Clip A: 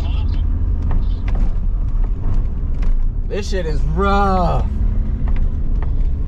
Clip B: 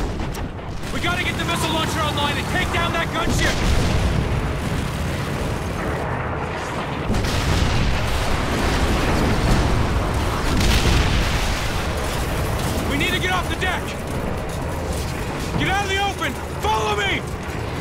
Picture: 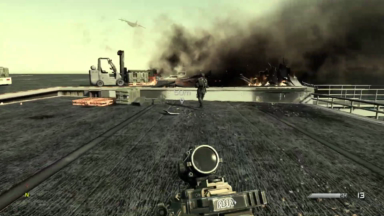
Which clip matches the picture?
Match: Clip B